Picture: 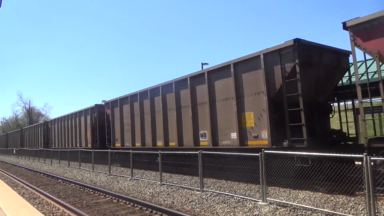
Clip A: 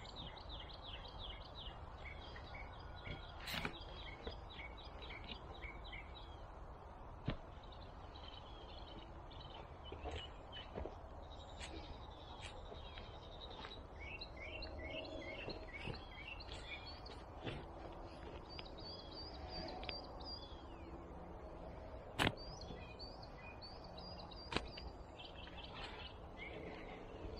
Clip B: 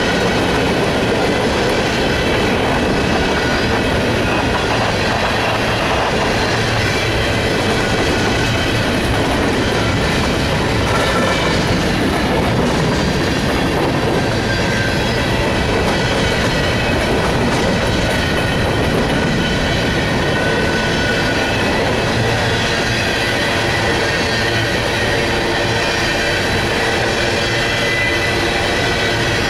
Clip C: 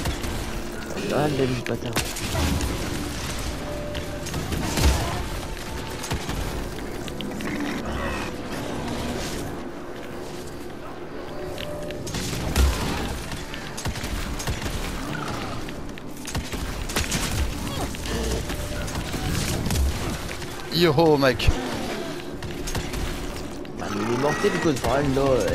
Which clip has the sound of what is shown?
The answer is B